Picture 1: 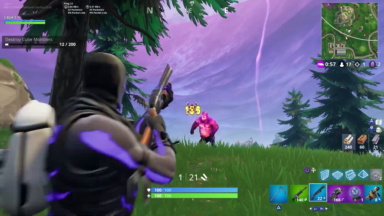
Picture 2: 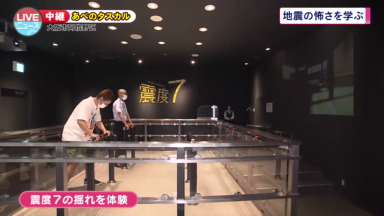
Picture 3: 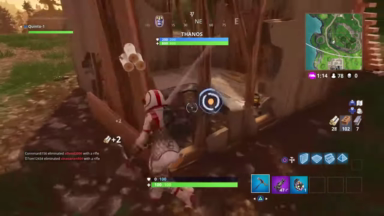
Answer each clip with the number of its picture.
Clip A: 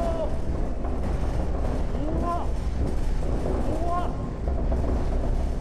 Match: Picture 2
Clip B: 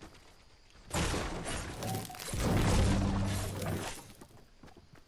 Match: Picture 3